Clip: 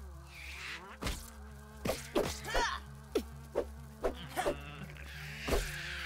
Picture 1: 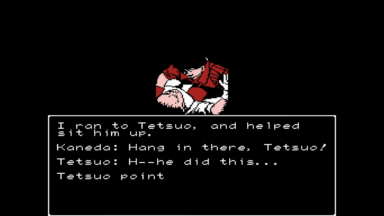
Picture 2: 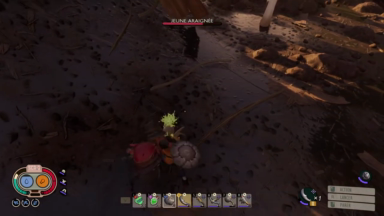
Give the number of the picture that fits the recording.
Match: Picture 2